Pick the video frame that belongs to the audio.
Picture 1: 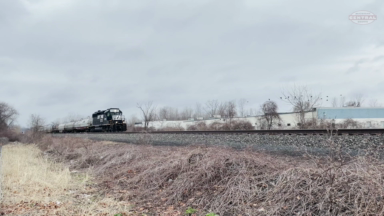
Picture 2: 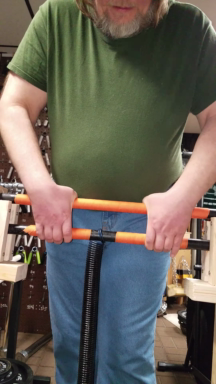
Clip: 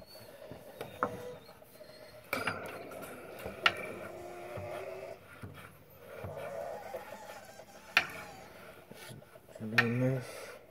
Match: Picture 2